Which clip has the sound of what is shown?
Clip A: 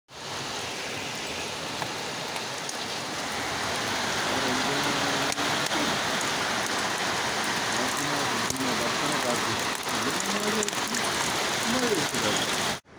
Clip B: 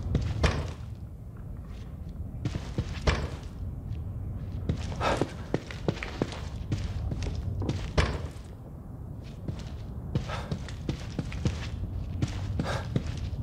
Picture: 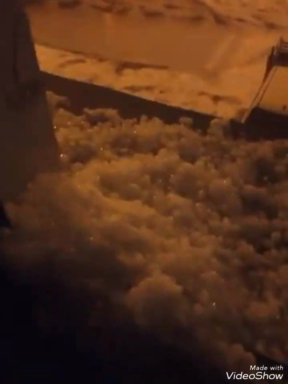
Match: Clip A